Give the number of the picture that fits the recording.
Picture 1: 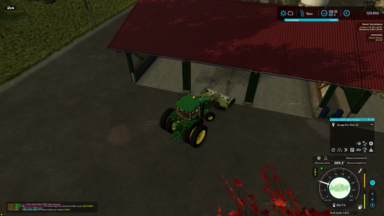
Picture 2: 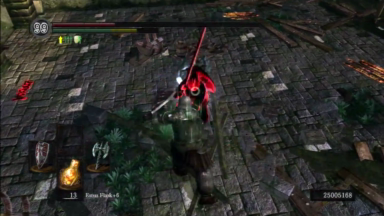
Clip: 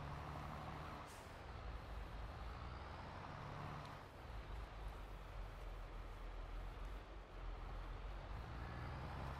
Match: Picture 1